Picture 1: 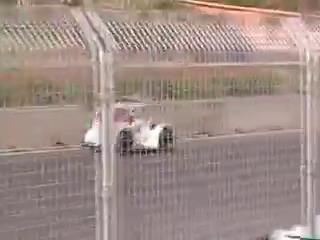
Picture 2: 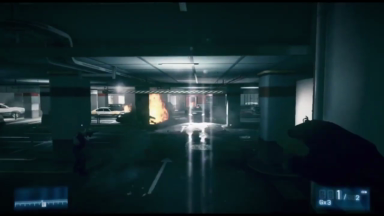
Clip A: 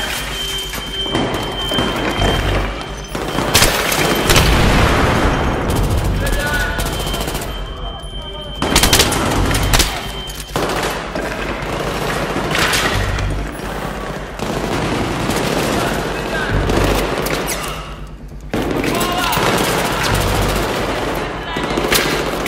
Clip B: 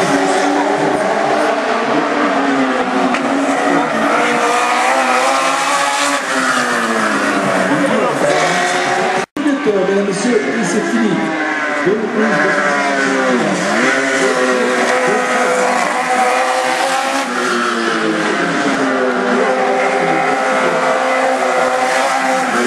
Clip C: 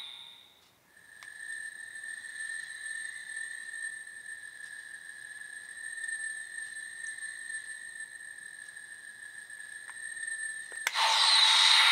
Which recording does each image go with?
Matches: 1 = B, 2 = A